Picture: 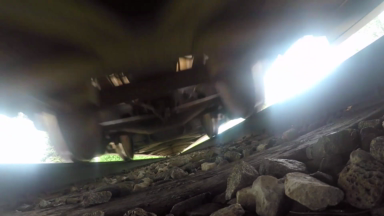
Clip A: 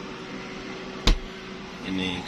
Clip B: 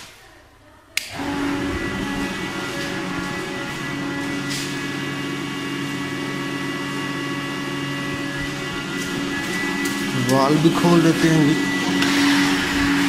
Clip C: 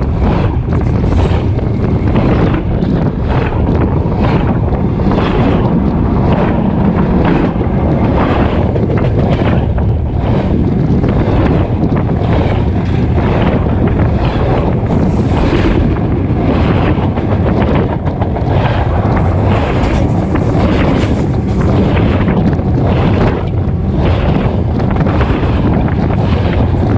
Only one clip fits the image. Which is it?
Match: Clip C